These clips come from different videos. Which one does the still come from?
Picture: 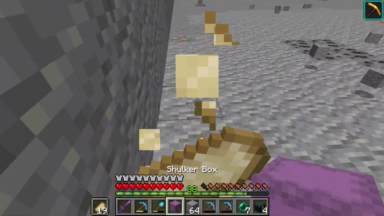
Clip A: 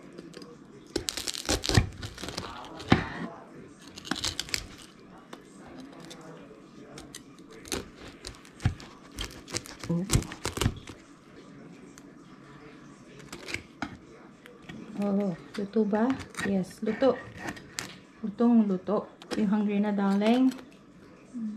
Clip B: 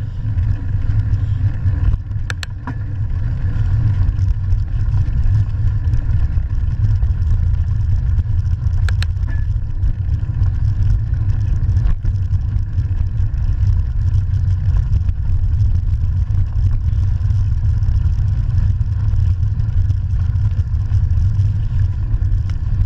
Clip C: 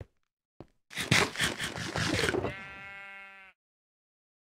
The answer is C